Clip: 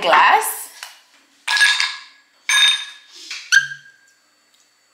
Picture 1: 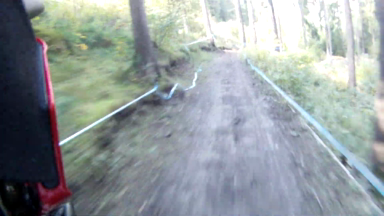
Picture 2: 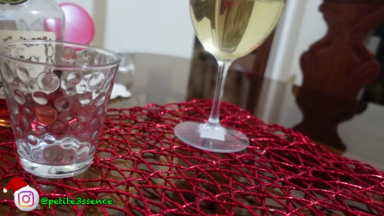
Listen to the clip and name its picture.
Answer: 2